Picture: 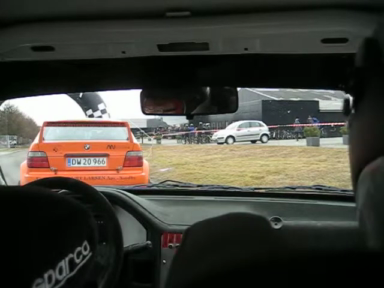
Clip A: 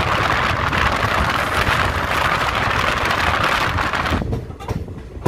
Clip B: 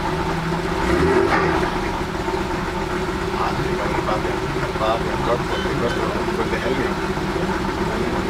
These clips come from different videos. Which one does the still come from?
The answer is B